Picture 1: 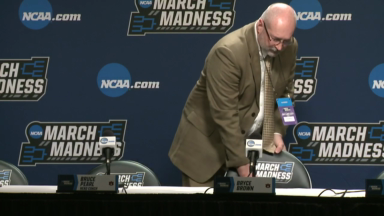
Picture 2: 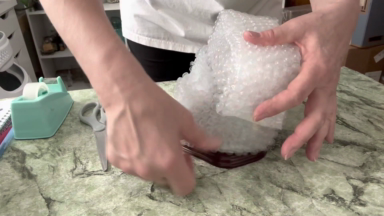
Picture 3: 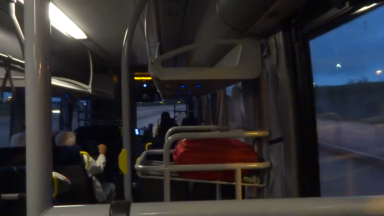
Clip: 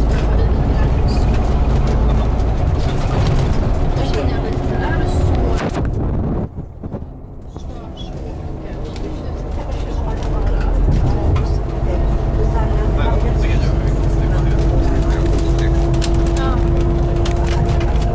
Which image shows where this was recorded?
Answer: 3